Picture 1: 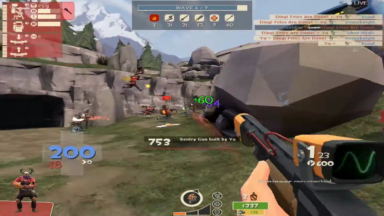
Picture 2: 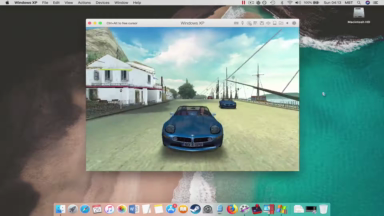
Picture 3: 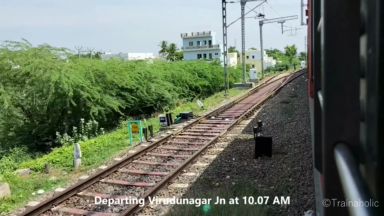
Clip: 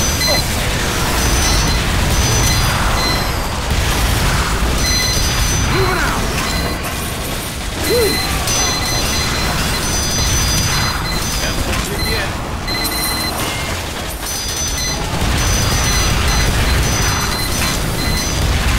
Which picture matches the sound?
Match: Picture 1